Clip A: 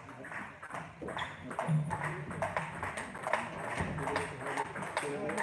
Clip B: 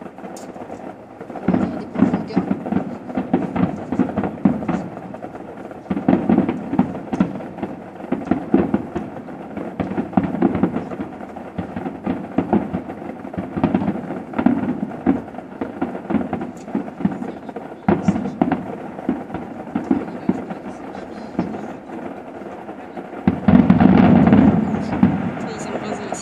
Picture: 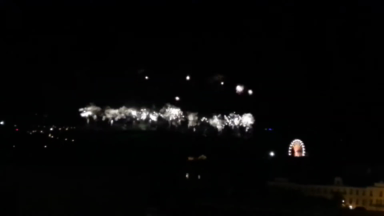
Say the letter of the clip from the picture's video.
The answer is B